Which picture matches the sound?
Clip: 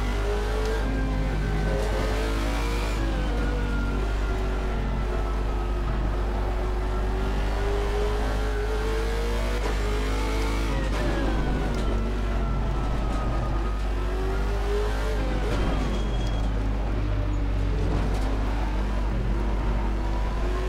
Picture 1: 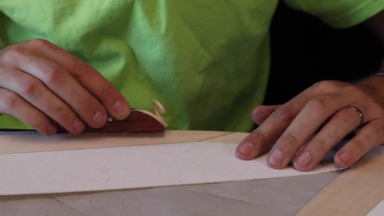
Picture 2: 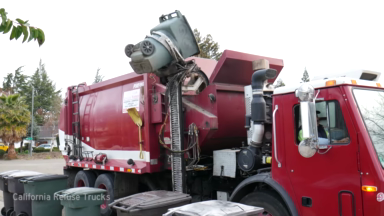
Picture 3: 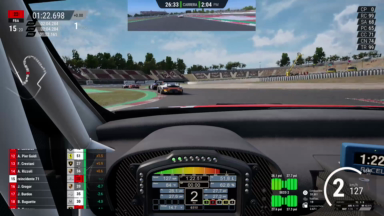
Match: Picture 3